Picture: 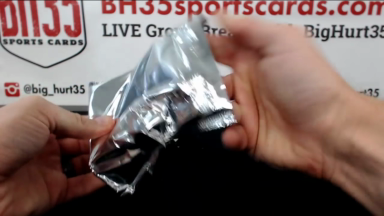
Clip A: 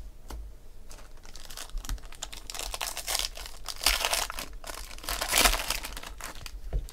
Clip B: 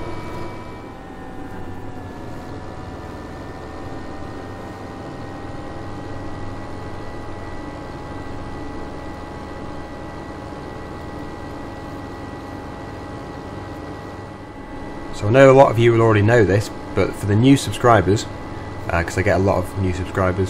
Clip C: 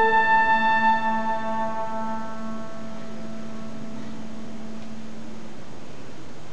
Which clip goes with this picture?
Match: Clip A